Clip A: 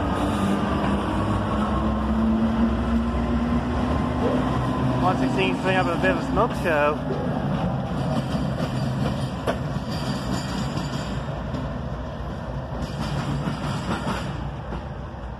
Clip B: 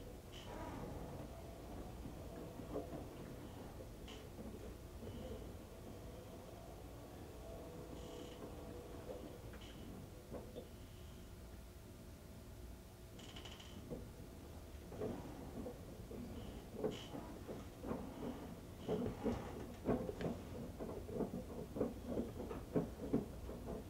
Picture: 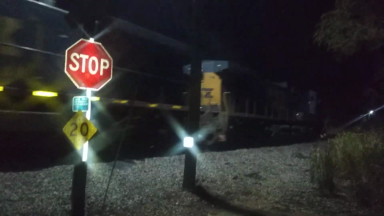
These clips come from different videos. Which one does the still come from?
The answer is A